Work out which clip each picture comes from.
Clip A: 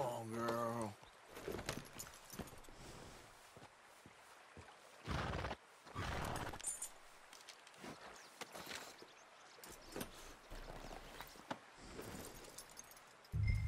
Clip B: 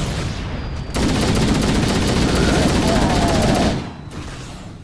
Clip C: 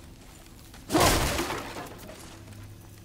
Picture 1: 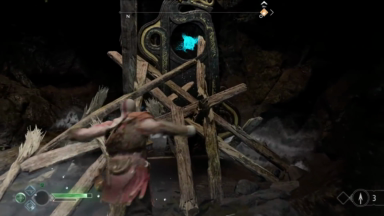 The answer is C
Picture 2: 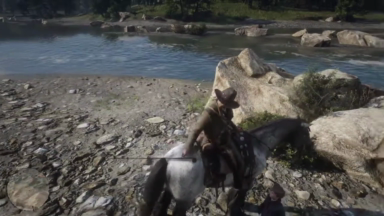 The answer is A